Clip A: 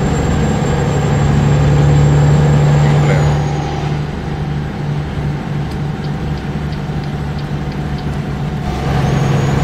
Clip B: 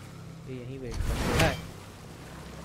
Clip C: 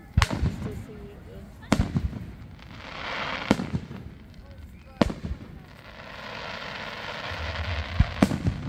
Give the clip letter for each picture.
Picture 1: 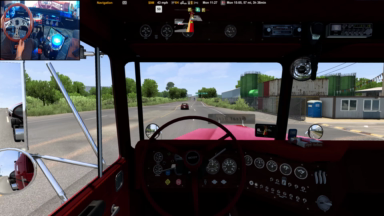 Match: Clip A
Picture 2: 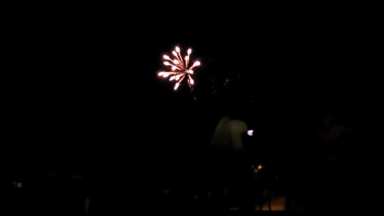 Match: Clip C